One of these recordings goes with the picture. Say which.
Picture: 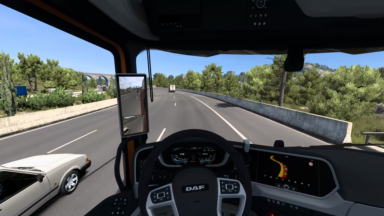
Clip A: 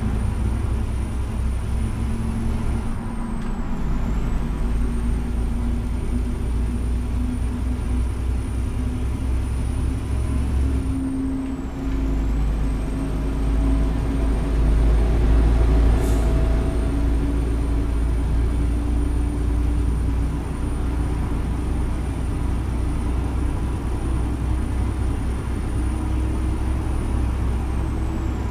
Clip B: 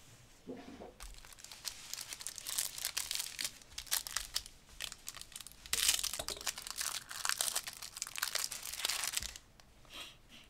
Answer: A